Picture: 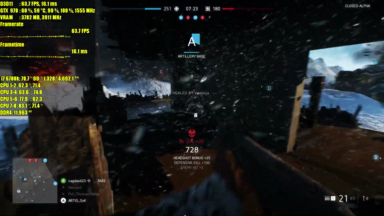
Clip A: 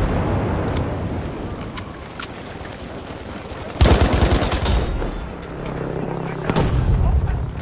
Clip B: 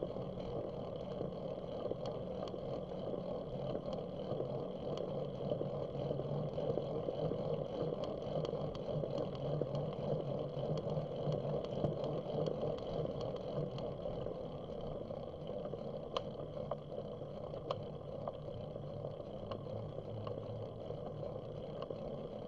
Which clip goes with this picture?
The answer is A